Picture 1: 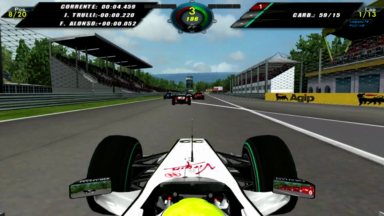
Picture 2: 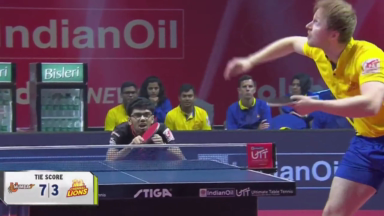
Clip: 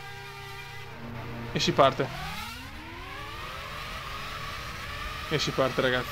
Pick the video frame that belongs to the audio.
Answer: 1